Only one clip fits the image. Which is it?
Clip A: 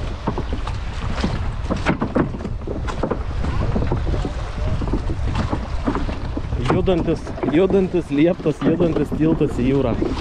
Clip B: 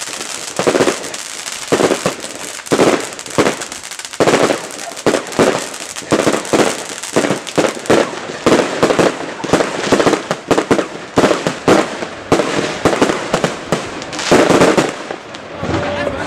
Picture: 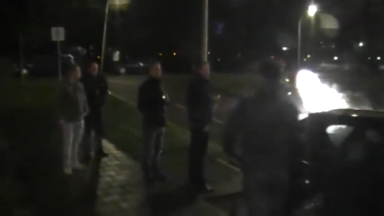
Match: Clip B